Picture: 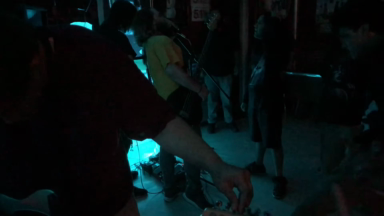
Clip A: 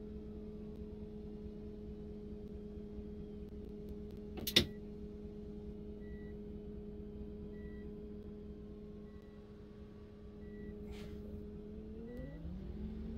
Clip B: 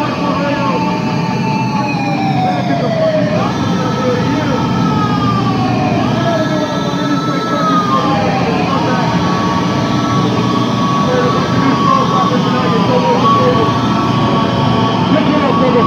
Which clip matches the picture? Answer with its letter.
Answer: B